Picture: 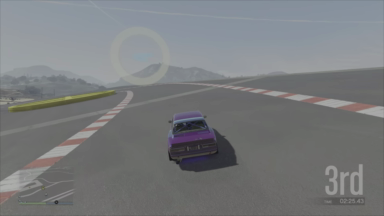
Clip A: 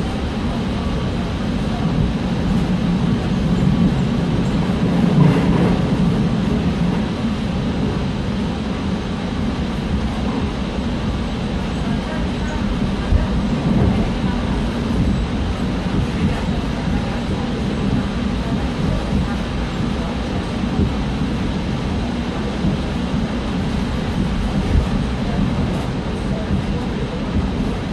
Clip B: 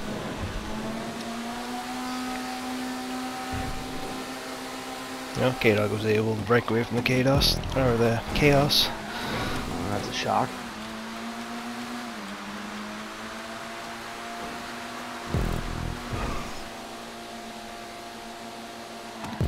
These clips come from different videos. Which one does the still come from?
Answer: B